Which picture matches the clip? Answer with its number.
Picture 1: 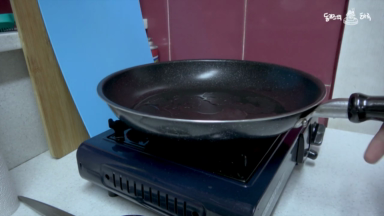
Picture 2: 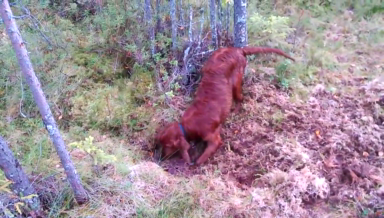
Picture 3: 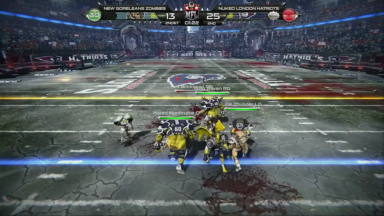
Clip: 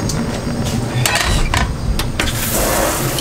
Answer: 1